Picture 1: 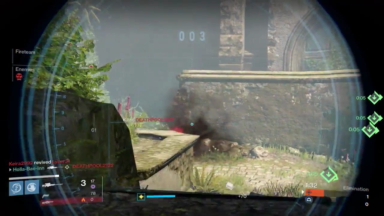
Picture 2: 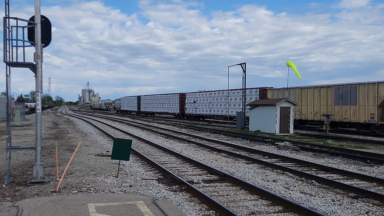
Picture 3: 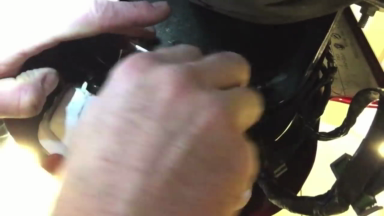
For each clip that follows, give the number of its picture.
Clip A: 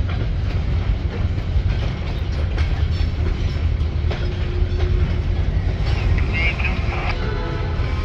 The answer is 2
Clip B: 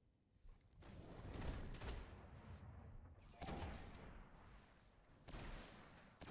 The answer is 1